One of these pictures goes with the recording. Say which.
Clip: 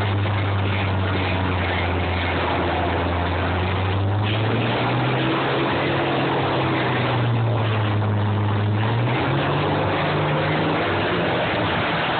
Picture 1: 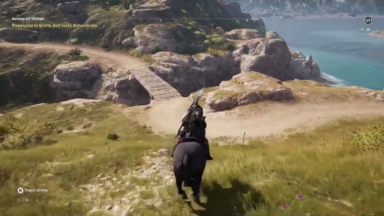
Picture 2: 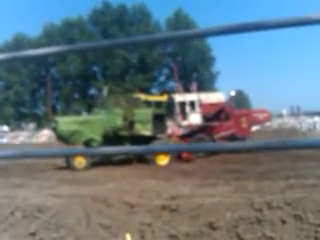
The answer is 2